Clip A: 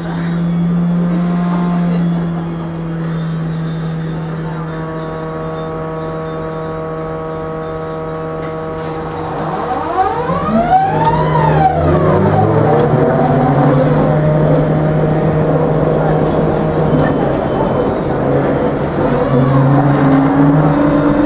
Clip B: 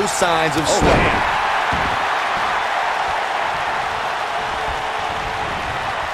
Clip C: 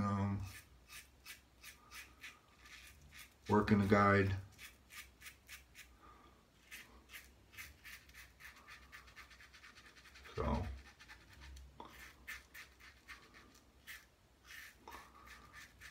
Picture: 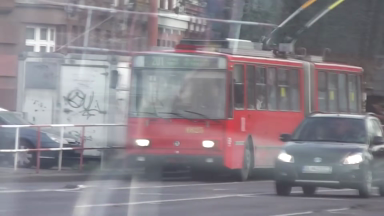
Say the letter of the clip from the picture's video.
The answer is A